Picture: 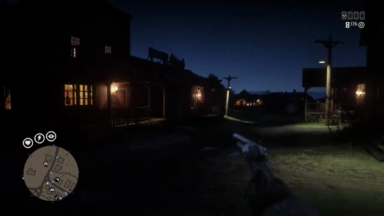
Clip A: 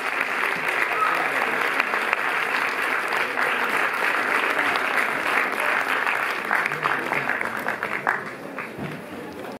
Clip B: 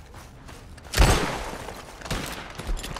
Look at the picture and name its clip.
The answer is B